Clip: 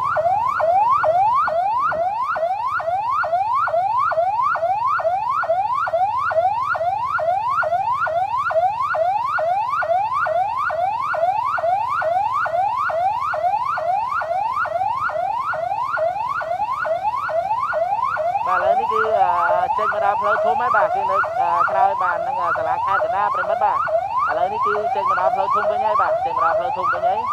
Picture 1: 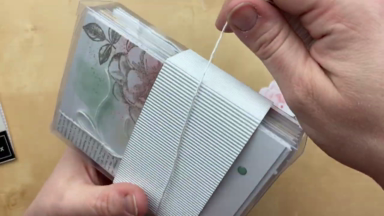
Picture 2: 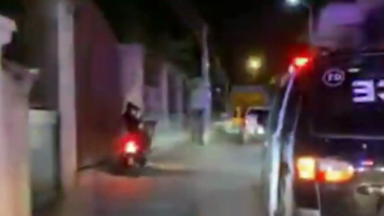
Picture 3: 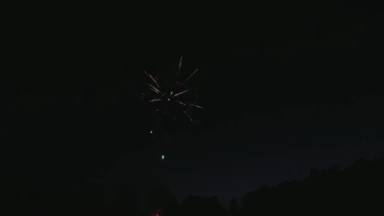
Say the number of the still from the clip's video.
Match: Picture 2